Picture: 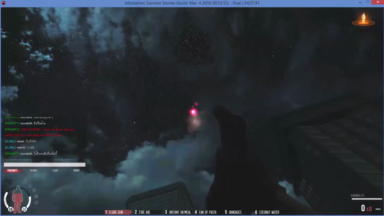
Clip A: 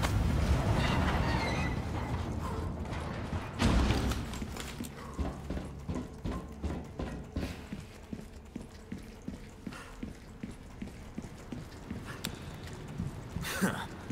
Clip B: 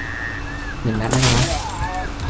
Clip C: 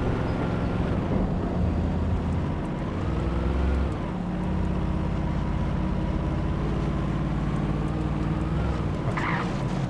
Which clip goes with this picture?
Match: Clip B